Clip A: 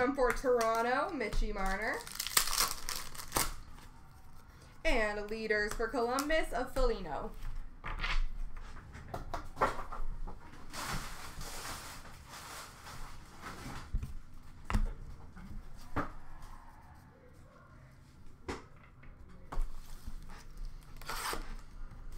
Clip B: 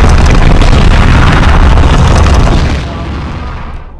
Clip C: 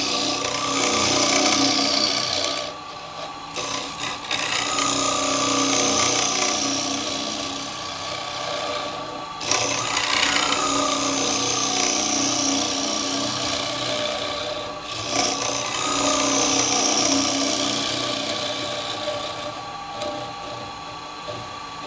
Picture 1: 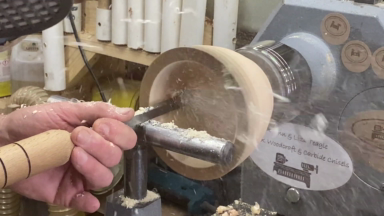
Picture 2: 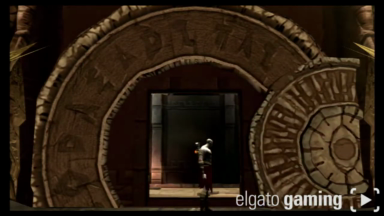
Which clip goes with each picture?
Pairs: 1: C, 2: B